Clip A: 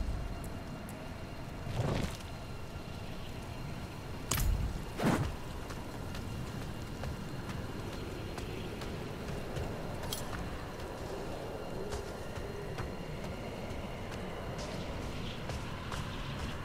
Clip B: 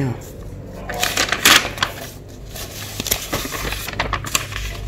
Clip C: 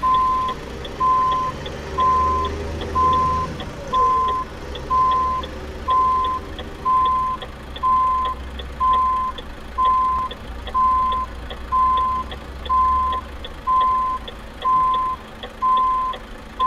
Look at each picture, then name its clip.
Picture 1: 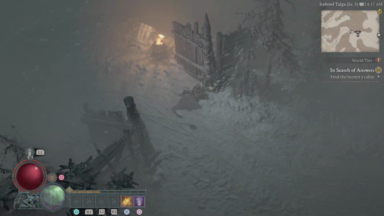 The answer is A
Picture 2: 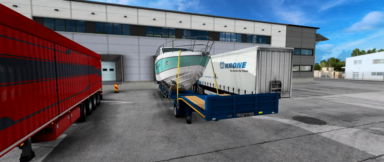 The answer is C